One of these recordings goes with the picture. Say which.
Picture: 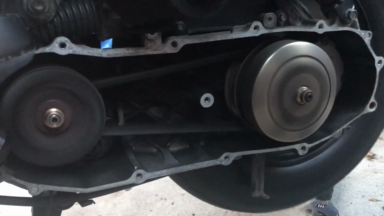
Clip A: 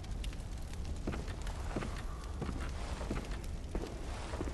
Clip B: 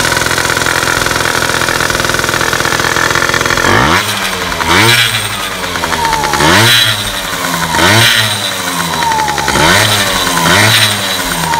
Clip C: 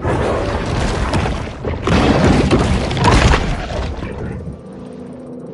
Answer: B